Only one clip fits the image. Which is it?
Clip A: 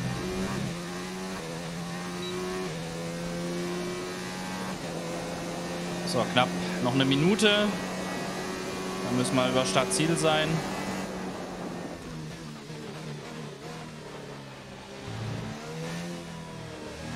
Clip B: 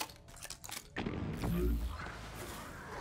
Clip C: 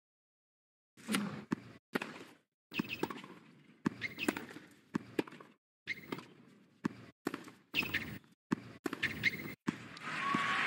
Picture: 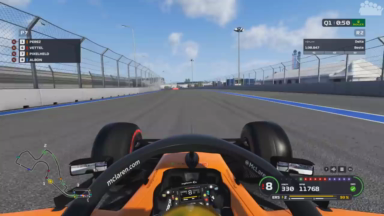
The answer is A